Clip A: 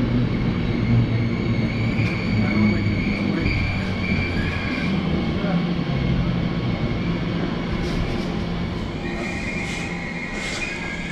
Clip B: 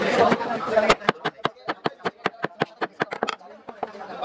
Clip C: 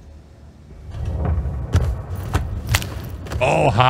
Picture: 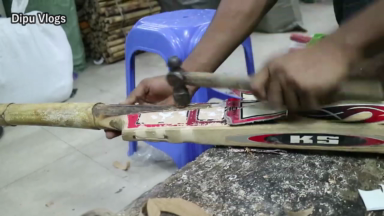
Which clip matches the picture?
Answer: B